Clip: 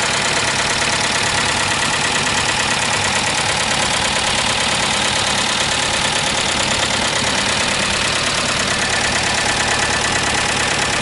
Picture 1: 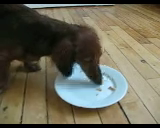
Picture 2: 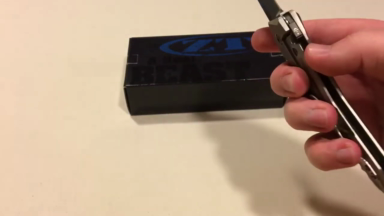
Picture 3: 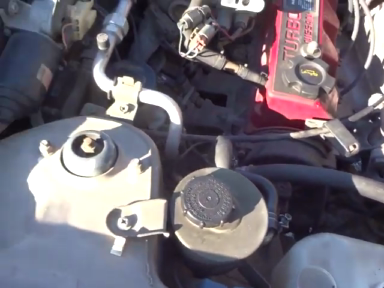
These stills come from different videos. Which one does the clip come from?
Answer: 3